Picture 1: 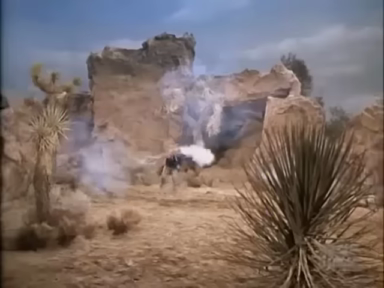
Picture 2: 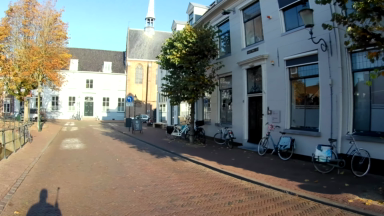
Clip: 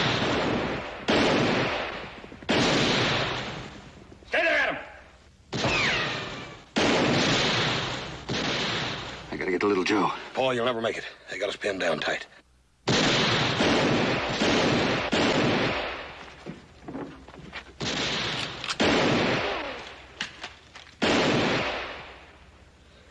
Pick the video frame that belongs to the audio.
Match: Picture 1